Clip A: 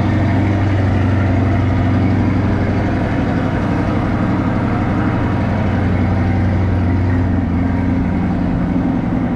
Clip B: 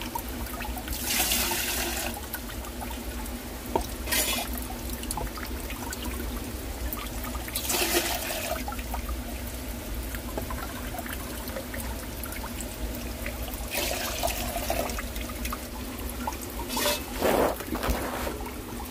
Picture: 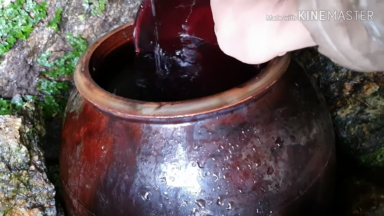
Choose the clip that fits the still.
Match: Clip B